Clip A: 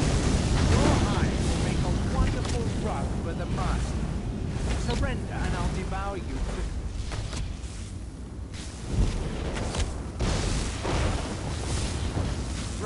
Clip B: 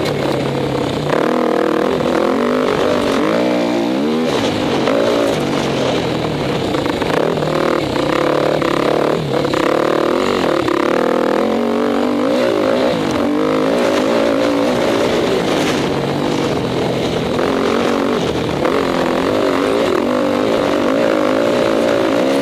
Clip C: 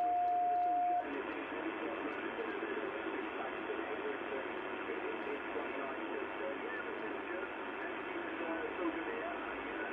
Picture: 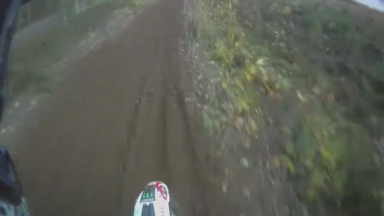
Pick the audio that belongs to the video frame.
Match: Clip B